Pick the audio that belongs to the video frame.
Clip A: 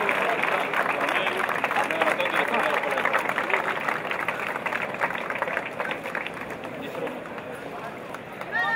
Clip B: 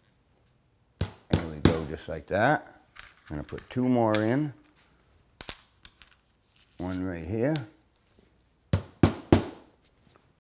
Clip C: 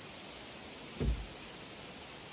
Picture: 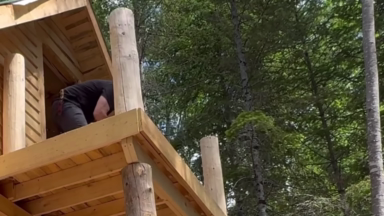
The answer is C